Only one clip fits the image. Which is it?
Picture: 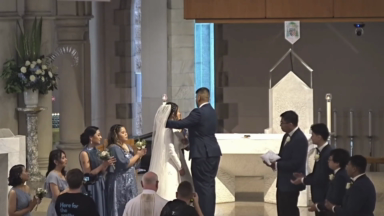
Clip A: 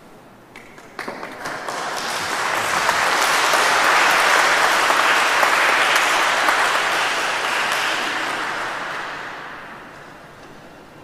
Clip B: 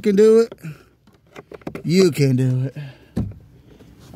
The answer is A